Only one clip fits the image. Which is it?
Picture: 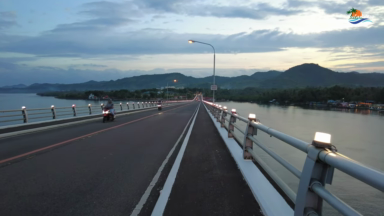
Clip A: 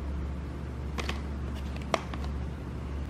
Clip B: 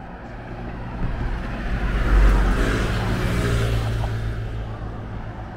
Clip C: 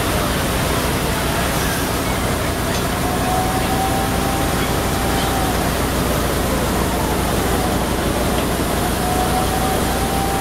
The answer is B